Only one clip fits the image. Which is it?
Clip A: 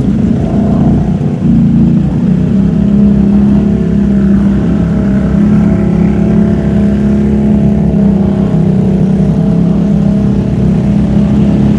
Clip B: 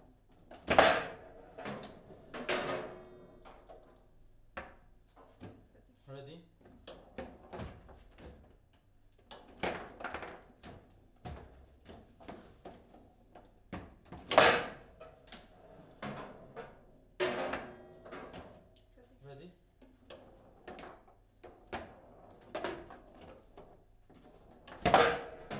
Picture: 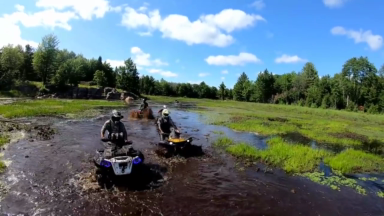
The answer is A